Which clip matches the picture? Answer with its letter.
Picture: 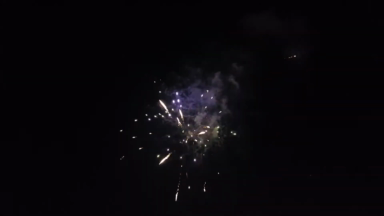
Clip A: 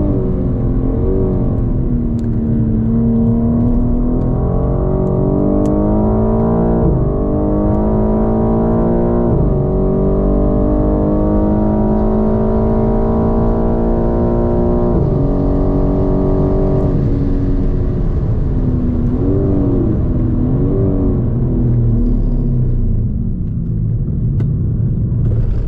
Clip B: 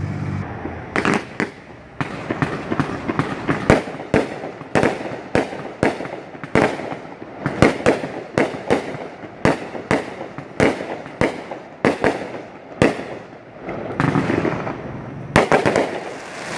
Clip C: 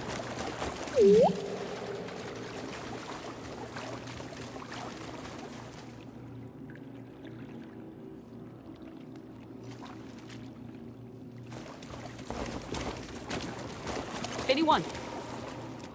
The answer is B